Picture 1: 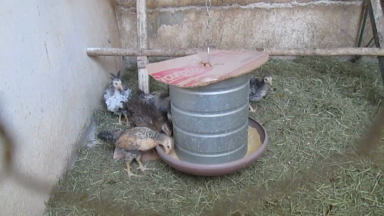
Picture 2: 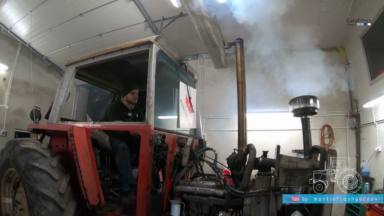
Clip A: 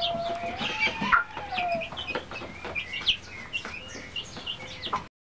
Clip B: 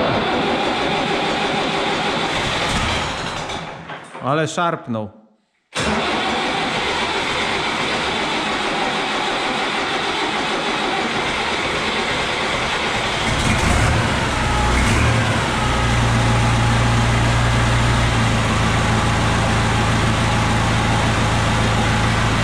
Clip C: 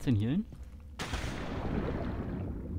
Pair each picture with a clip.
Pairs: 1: A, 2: B